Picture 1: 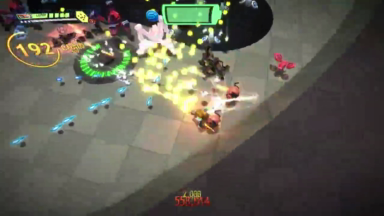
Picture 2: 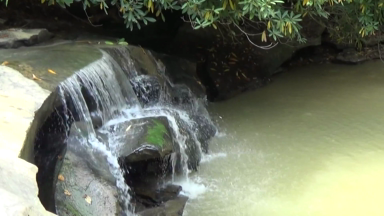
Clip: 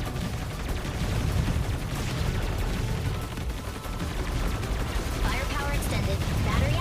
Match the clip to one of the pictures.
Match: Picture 1